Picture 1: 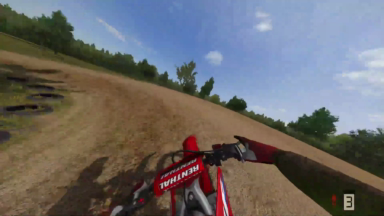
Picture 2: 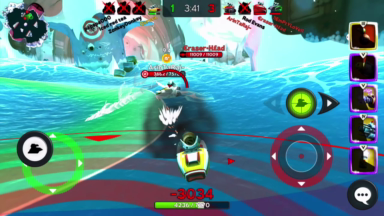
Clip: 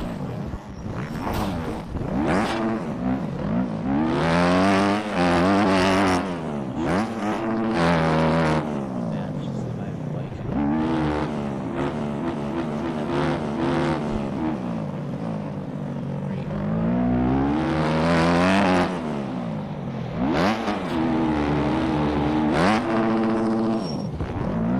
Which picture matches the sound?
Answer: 1